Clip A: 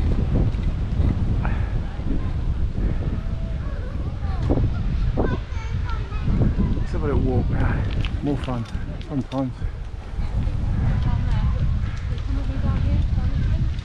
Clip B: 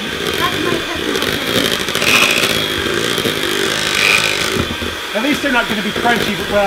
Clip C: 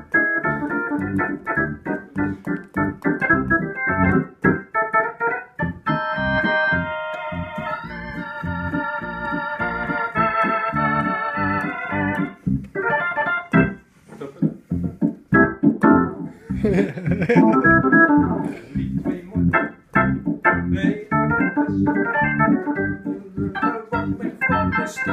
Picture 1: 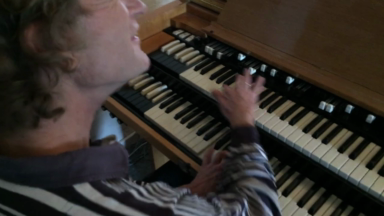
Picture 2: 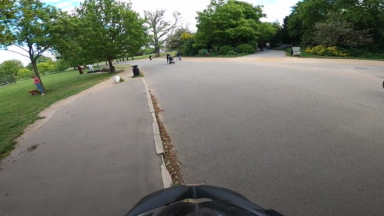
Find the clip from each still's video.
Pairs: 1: C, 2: A